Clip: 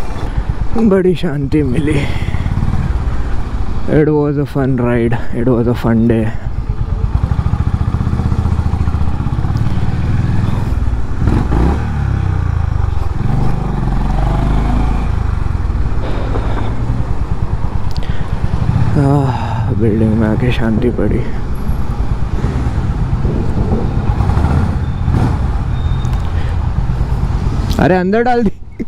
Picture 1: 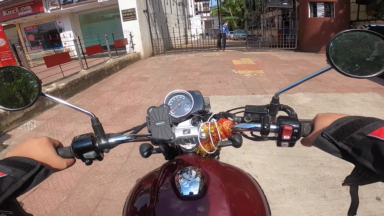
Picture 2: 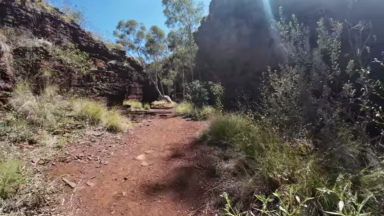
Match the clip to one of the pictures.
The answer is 1